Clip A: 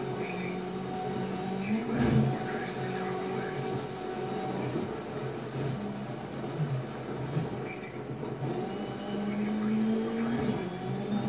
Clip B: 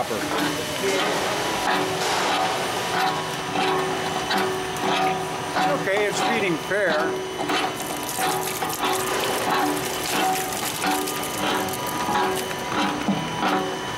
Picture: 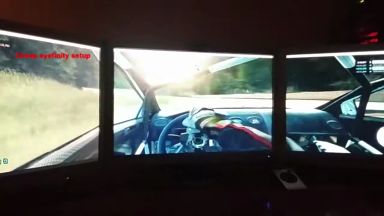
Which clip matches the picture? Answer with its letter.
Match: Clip A